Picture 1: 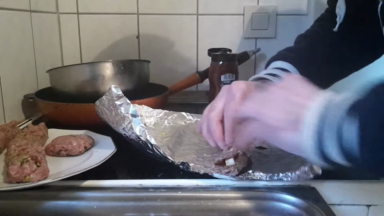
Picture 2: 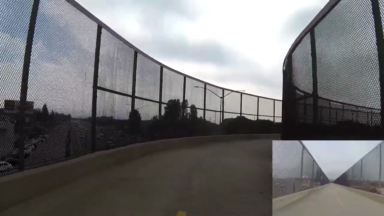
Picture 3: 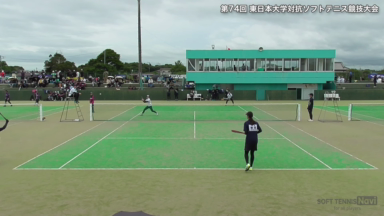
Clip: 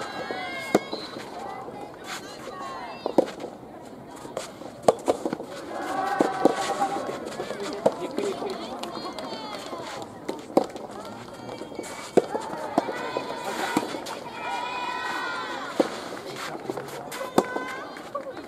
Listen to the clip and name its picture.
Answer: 3